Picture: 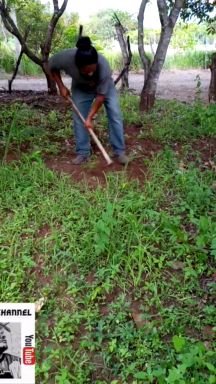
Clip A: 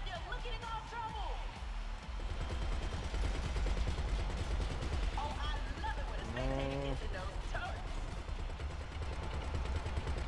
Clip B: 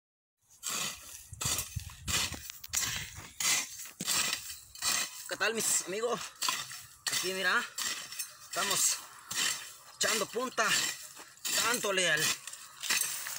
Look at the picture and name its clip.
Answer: B